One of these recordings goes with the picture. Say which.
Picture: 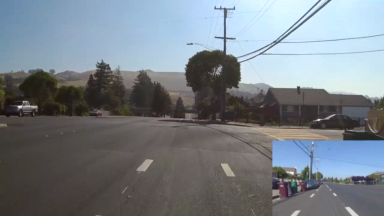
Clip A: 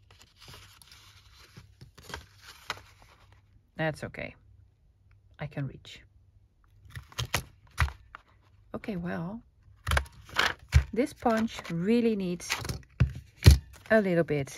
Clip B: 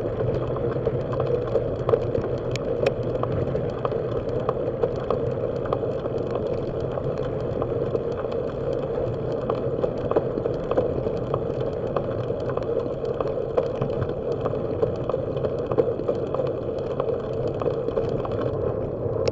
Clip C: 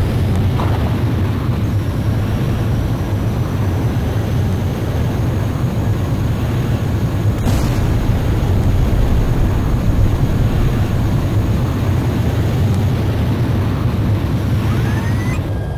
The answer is B